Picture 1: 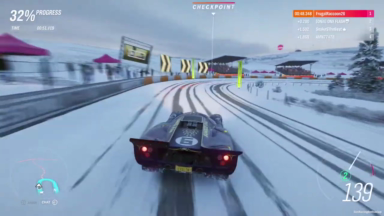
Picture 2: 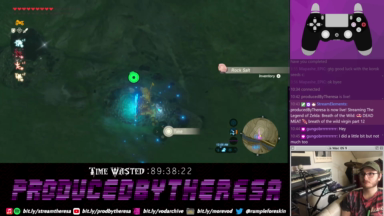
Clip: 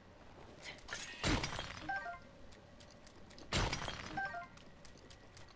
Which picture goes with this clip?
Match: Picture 2